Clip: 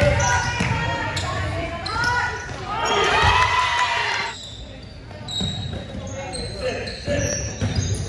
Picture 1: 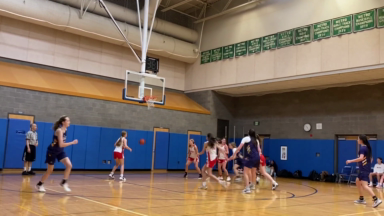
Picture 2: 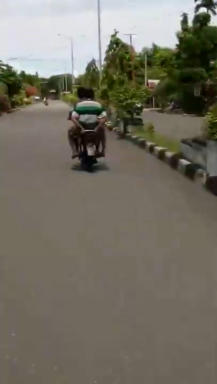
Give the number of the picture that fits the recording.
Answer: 1